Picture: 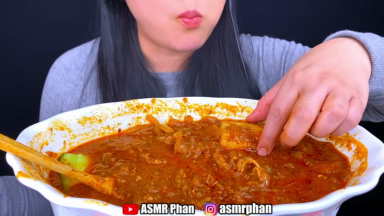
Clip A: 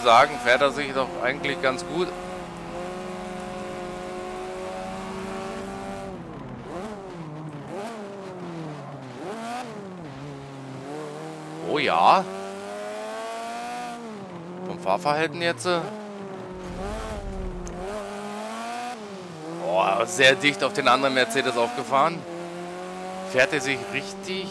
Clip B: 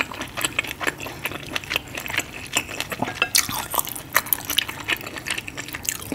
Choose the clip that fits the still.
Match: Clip B